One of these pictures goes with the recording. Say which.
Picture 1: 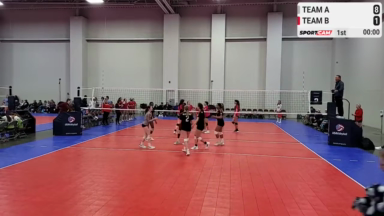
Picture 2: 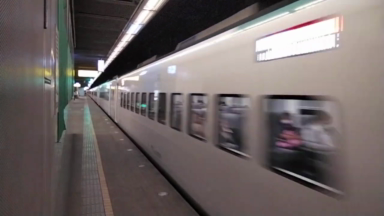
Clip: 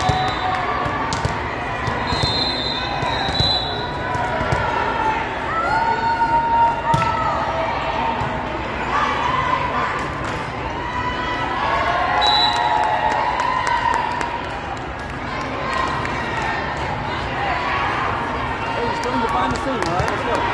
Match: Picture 1